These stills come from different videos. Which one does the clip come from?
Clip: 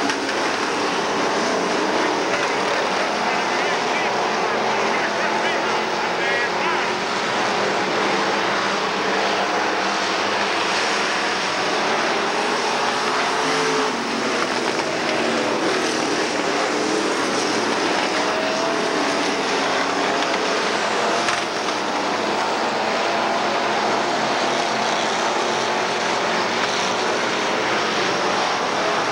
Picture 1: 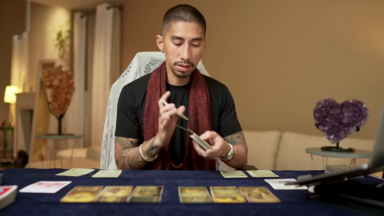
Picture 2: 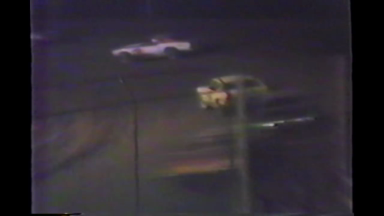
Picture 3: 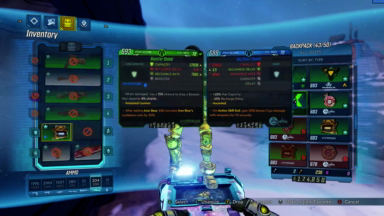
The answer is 2